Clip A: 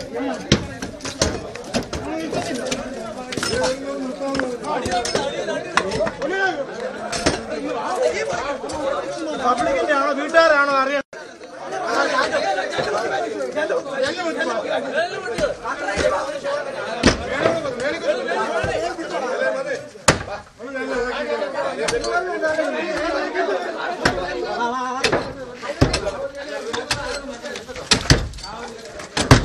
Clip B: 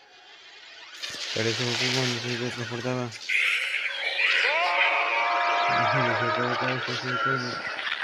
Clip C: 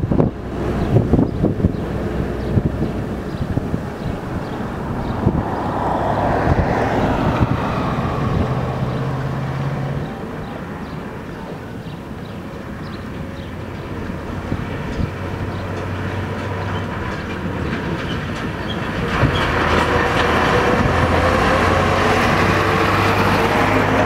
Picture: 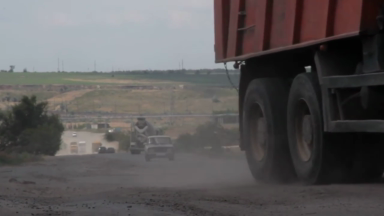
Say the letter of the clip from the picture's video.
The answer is C